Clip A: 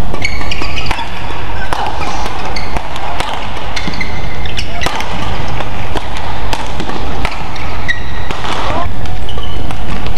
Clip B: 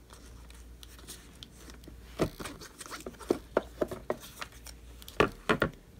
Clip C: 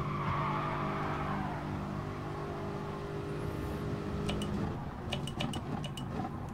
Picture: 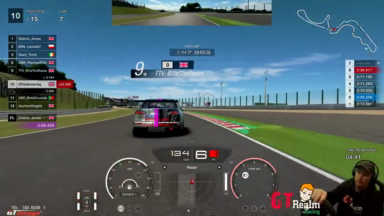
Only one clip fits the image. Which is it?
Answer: C